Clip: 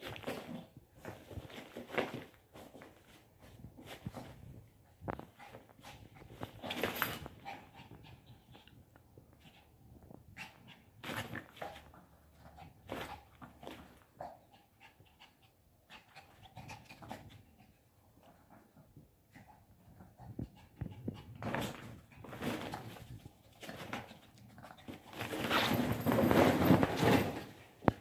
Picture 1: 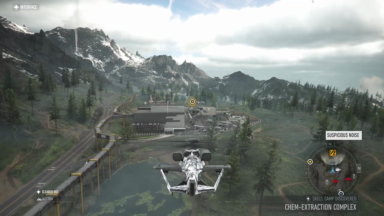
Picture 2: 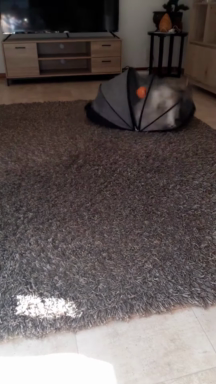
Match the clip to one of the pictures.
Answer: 2